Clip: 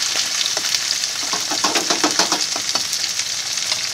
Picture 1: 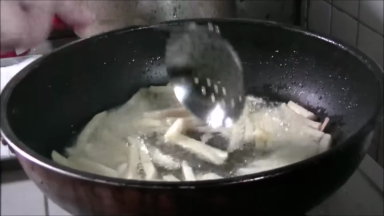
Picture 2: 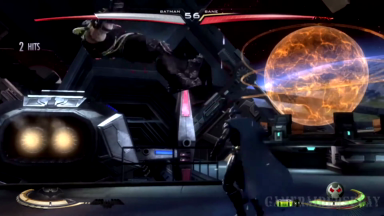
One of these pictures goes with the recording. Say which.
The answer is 1